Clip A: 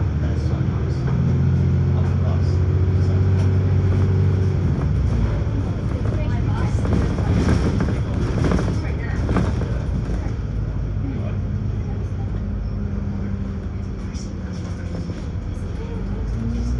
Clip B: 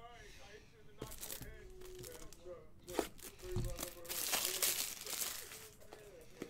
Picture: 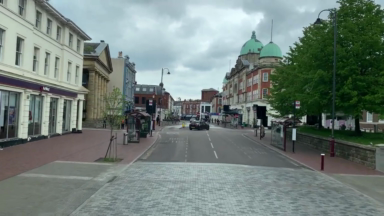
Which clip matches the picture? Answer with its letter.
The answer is A